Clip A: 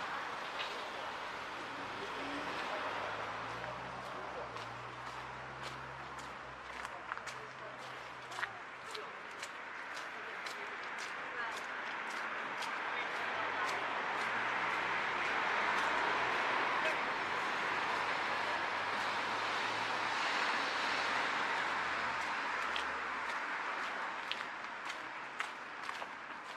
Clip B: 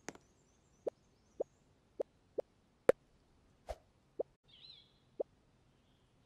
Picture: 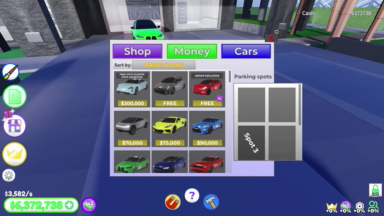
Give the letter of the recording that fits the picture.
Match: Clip B